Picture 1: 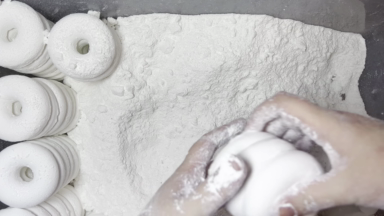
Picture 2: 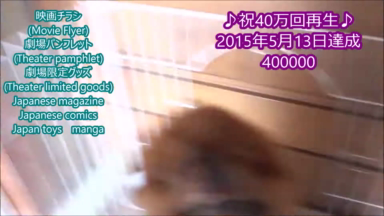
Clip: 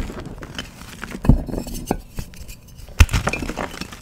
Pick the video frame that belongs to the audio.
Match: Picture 1